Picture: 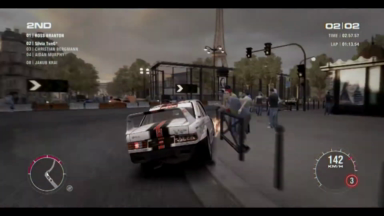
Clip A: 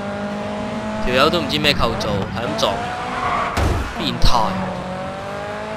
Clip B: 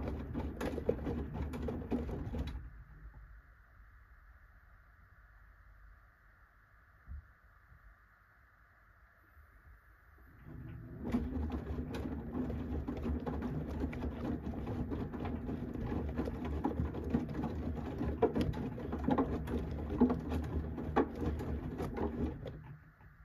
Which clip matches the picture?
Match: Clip A